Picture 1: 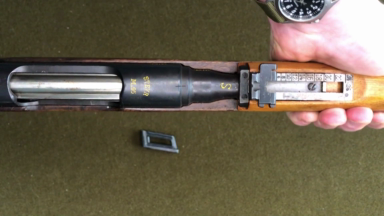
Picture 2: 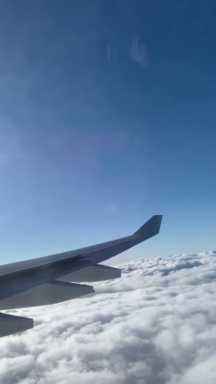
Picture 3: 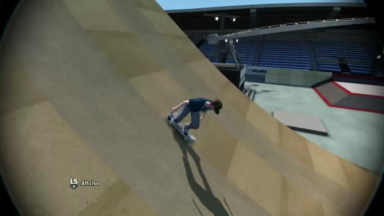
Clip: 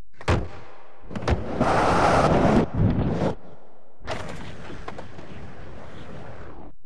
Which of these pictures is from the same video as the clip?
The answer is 3